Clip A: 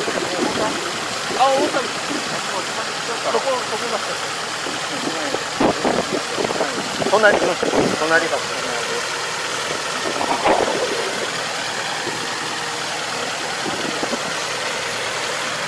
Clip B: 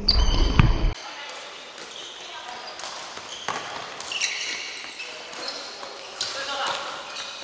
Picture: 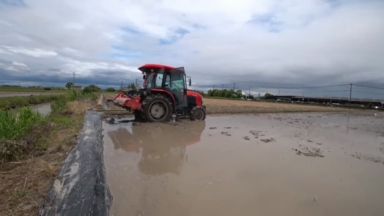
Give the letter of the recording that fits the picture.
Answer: A